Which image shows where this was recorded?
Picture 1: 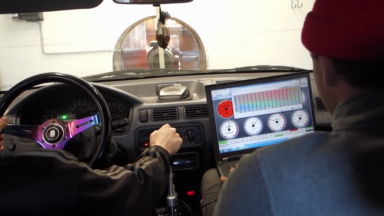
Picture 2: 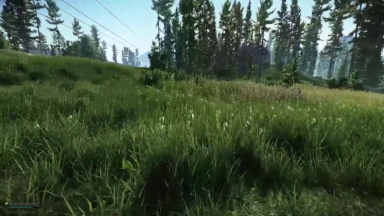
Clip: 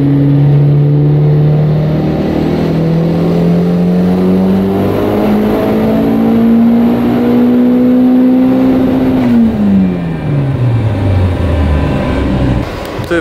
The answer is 1